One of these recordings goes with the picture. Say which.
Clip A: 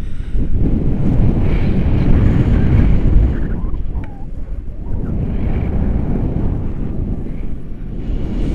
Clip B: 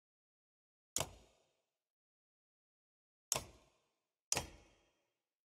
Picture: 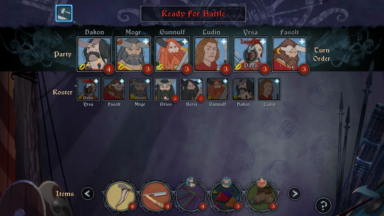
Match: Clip B